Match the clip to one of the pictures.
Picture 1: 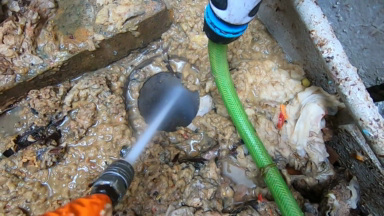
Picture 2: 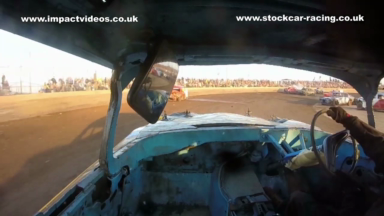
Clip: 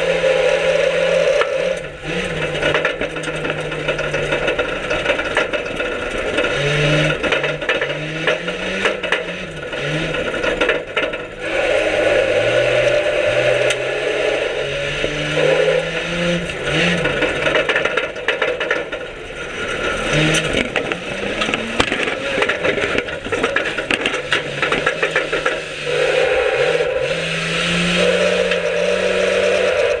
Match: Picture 2